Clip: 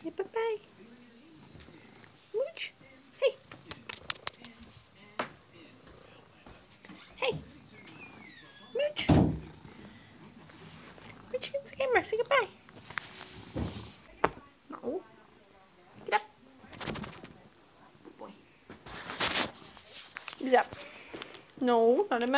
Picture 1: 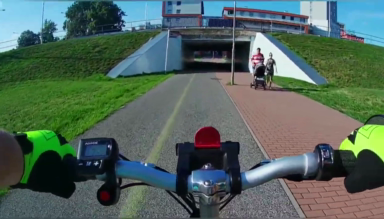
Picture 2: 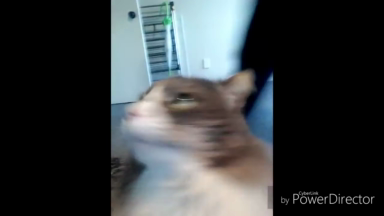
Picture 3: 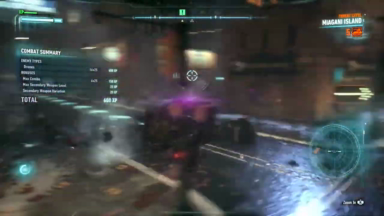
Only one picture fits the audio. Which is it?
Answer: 2